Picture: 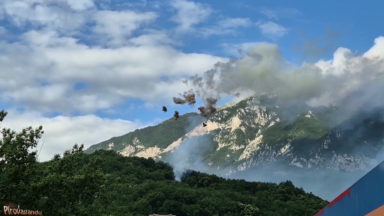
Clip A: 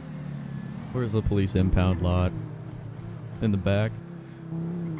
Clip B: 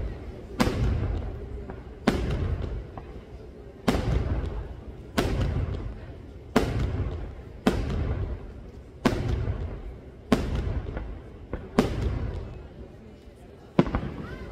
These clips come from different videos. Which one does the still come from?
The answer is B